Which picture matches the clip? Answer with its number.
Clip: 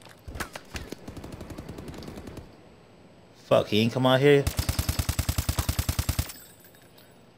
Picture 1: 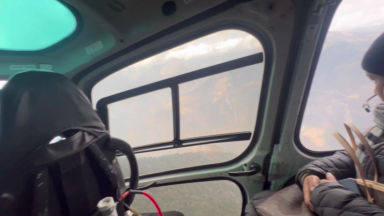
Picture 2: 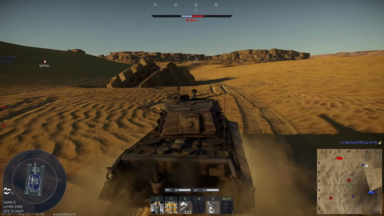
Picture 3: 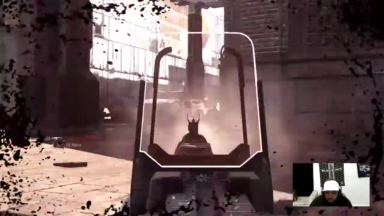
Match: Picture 3